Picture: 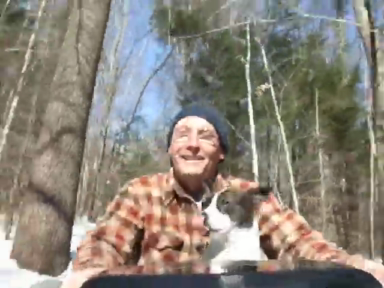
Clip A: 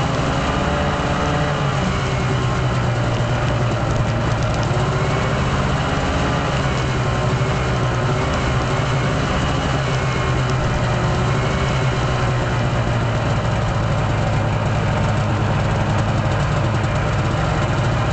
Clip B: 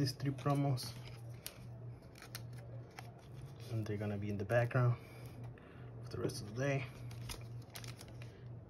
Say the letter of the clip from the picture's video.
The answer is A